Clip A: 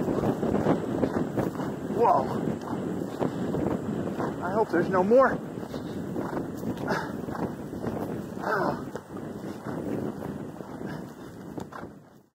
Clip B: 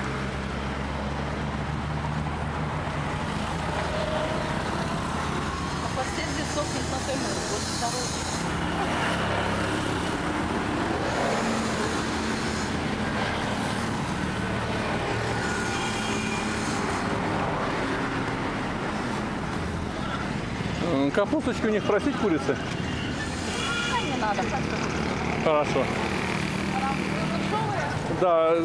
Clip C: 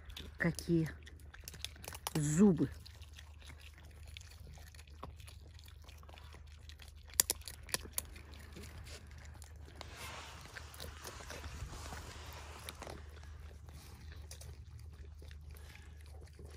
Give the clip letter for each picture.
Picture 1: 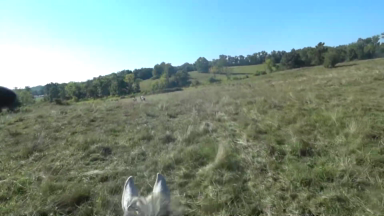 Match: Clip A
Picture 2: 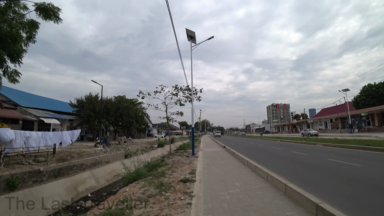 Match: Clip B